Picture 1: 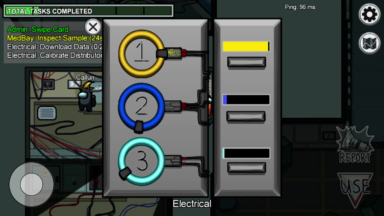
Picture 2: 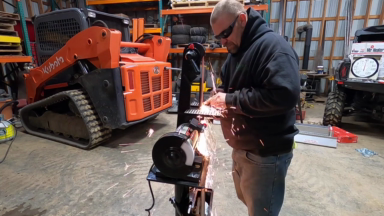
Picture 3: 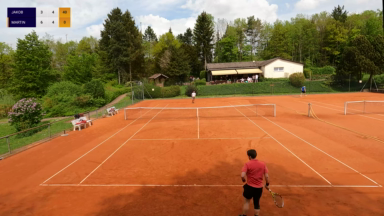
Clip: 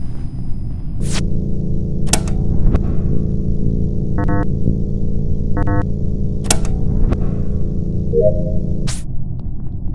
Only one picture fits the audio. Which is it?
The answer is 1